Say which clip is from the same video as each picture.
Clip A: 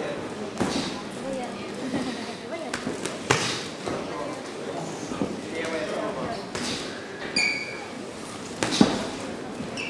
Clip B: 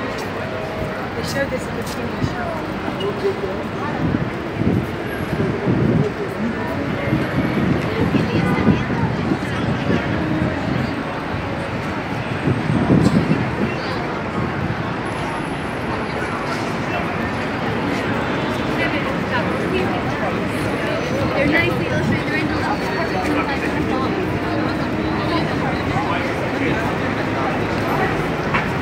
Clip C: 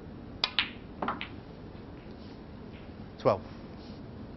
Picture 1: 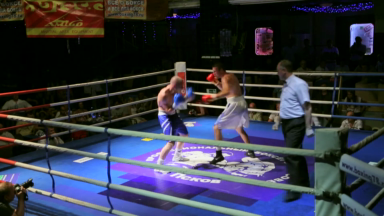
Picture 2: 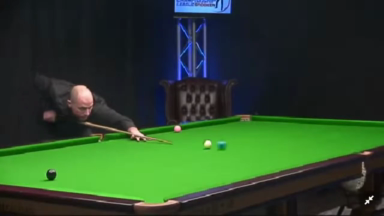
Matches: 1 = A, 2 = C